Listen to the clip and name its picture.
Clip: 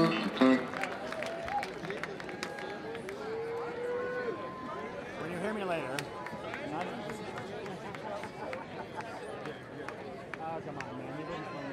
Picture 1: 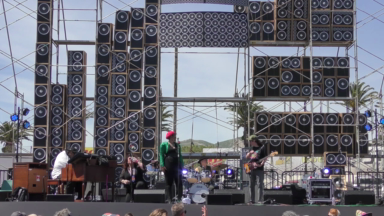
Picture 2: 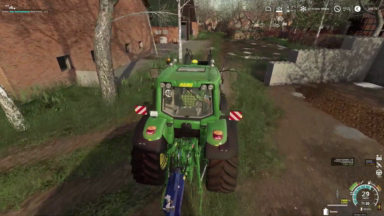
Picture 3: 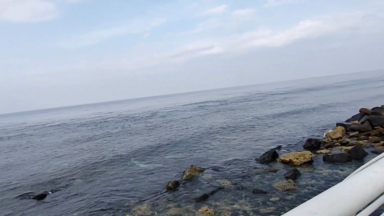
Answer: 1